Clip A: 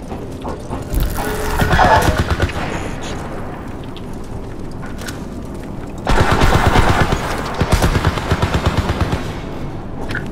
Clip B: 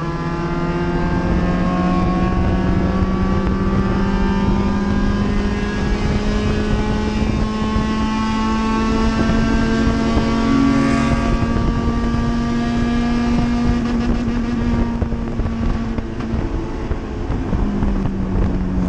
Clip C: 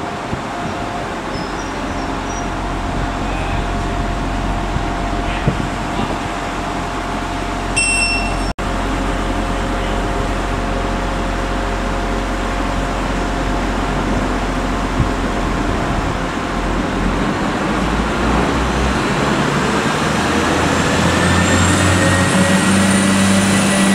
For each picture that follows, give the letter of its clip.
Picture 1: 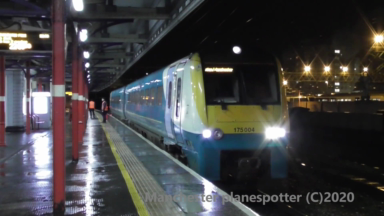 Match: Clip C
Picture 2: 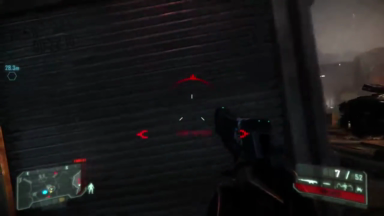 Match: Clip A